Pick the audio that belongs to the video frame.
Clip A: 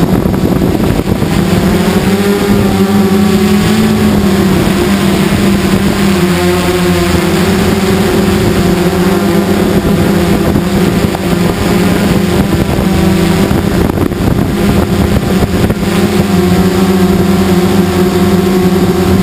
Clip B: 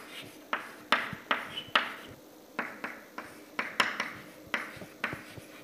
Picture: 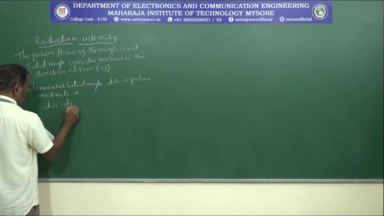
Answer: B